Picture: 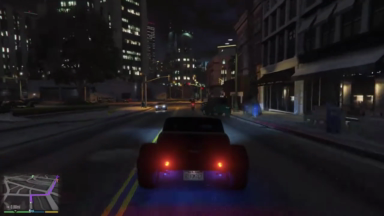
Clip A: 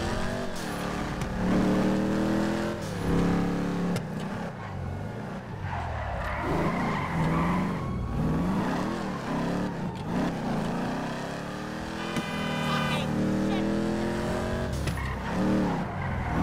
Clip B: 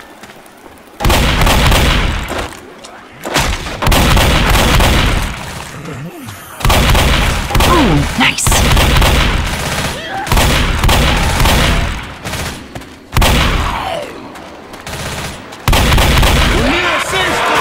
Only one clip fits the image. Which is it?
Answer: A